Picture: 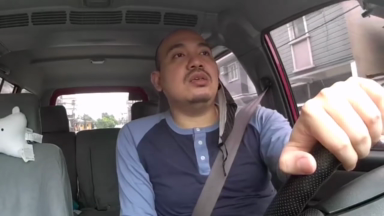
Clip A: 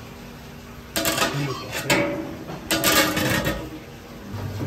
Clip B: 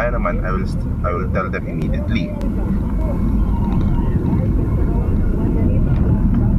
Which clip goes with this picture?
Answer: B